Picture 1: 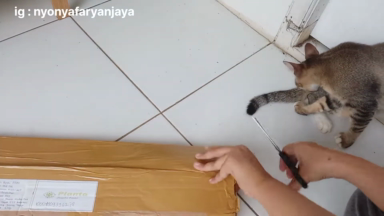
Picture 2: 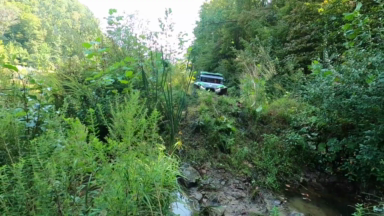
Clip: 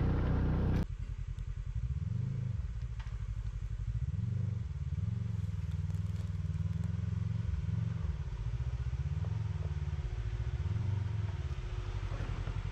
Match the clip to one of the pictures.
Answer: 2